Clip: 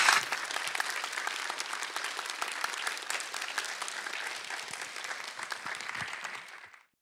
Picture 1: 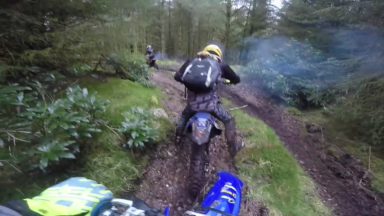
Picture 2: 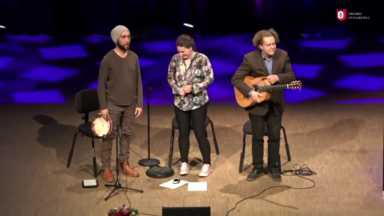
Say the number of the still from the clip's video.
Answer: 2